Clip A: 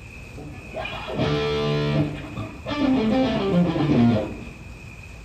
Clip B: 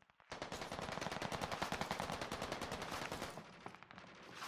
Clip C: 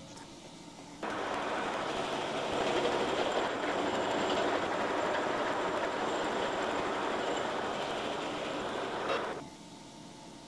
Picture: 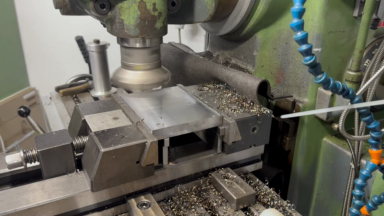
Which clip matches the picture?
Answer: C